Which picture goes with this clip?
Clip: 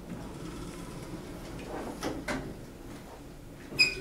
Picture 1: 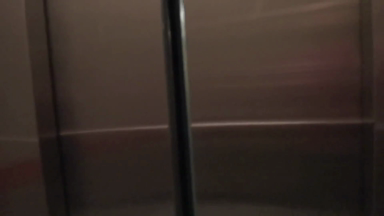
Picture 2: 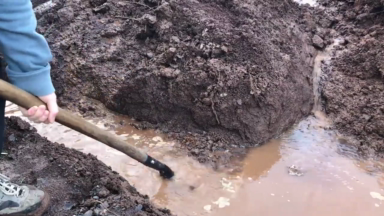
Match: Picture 1